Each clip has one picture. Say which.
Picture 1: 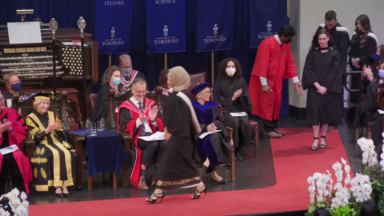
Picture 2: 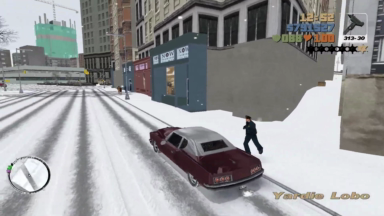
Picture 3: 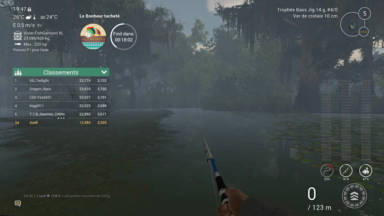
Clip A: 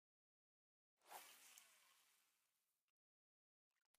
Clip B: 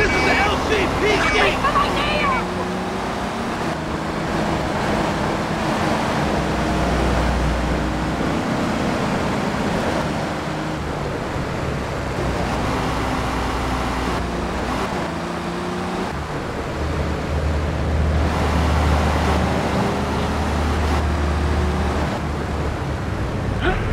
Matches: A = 3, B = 2